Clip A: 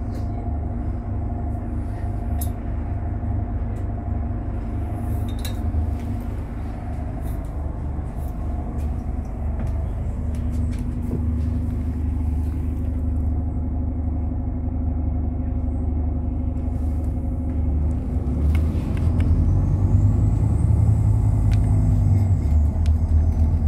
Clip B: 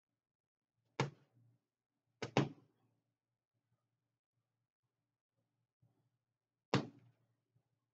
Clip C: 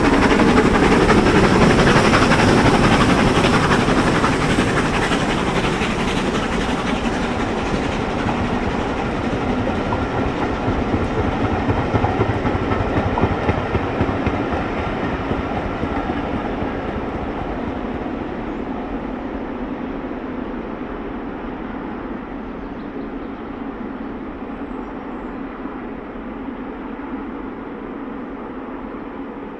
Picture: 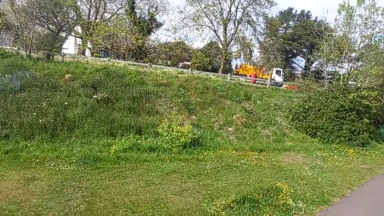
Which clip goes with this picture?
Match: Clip A